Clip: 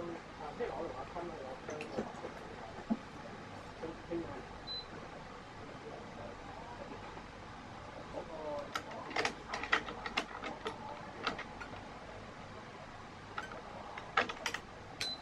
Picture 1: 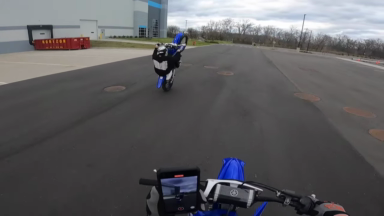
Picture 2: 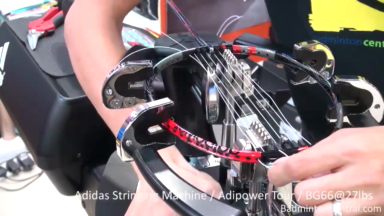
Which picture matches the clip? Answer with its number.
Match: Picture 2